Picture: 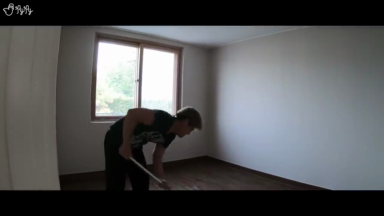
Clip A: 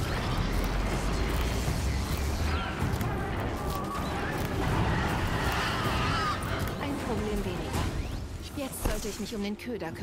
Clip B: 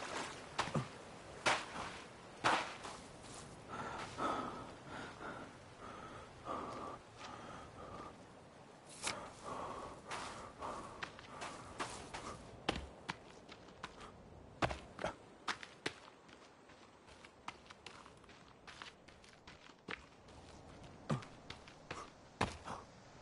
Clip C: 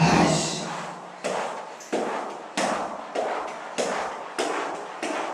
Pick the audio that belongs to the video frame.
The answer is C